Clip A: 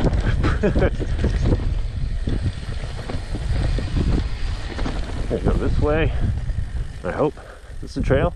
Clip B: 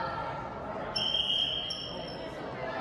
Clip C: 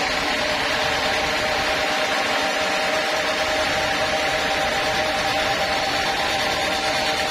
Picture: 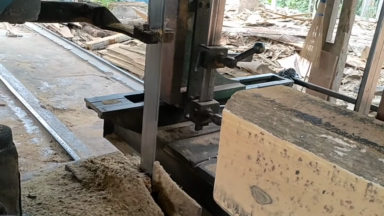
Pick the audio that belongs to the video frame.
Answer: C